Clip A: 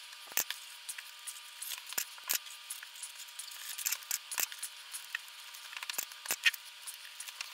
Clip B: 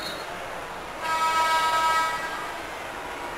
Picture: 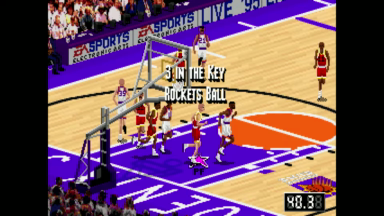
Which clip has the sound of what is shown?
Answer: B